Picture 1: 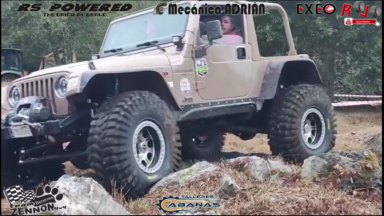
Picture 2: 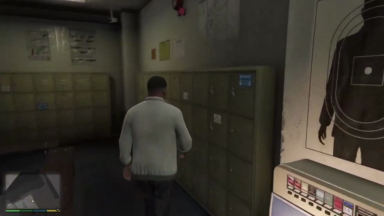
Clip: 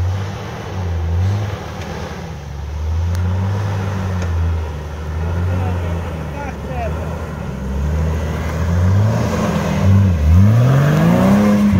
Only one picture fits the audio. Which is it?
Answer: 1